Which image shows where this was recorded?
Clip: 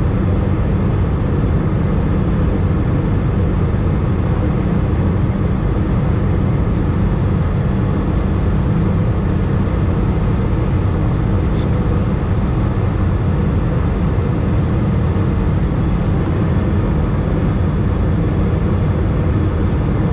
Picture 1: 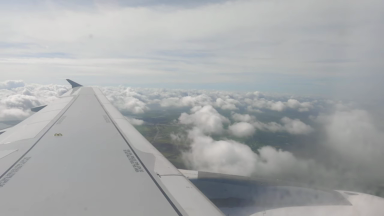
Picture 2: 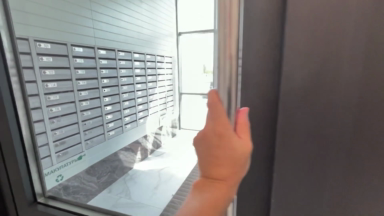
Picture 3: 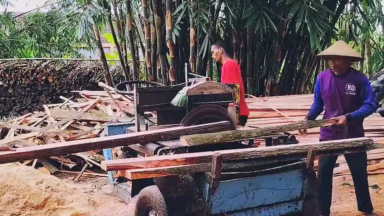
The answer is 1